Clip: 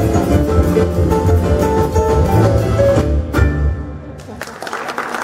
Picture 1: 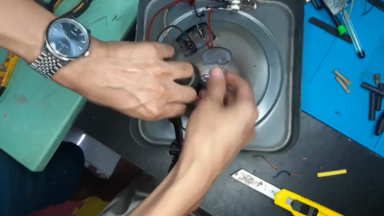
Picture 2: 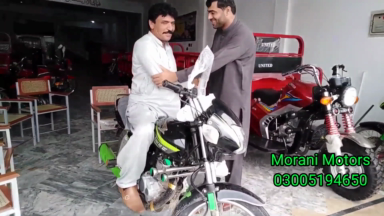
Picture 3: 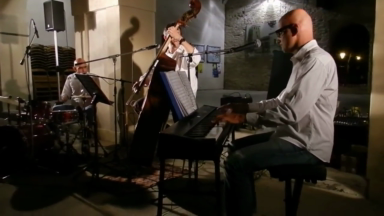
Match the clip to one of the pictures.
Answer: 3